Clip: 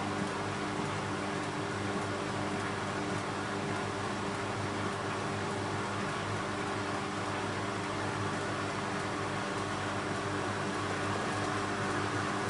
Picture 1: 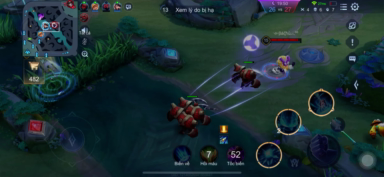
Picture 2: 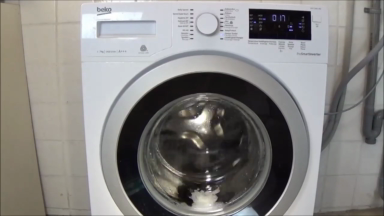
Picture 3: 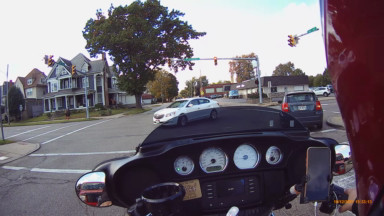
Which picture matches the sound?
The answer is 2